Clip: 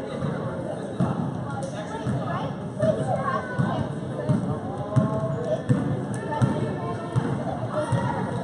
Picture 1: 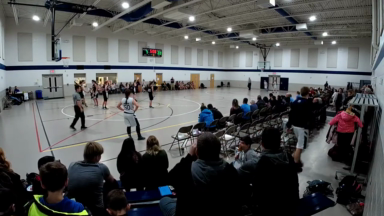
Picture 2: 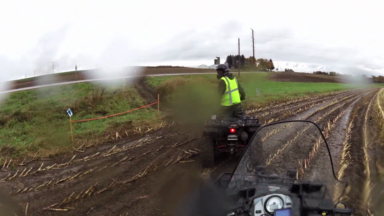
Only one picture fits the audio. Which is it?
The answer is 1